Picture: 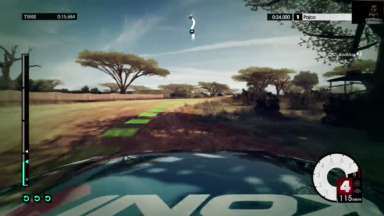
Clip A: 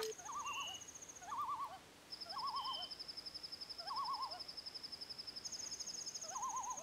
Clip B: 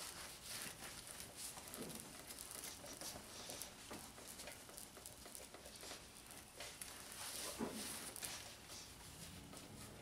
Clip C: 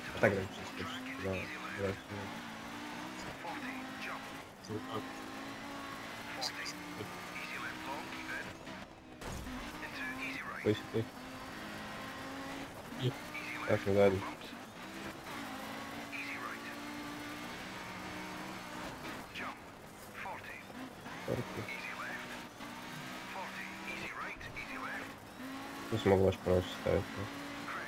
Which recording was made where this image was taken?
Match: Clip C